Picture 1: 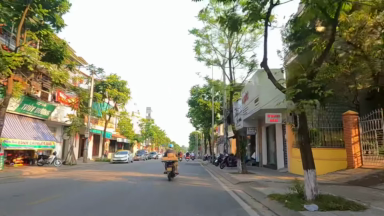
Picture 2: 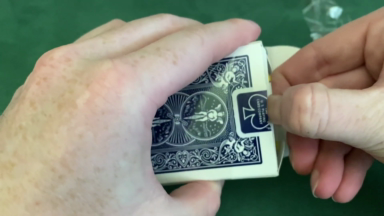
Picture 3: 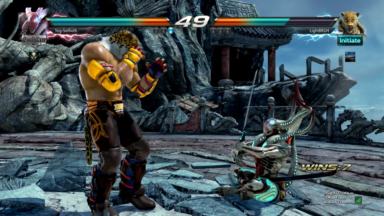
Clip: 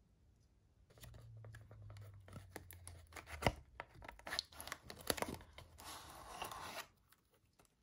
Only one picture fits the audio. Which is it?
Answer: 2